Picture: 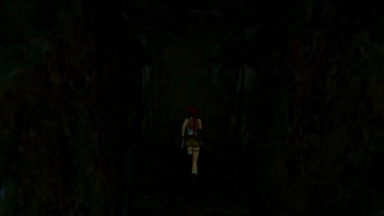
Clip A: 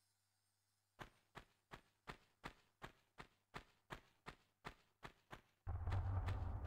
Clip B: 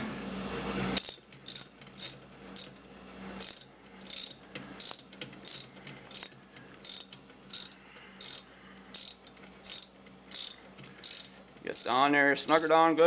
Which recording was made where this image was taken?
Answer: A